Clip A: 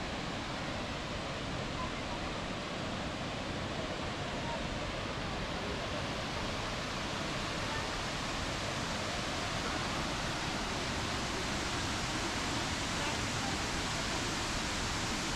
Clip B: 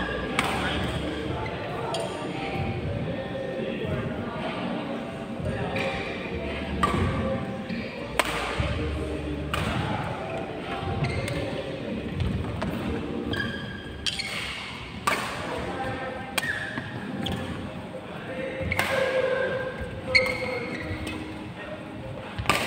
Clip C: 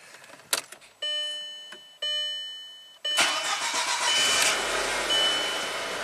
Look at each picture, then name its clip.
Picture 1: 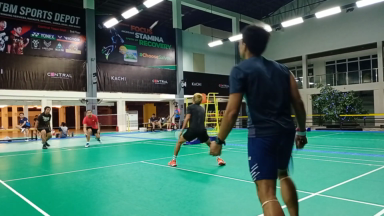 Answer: B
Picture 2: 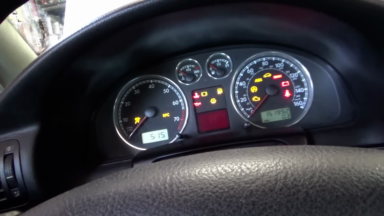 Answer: C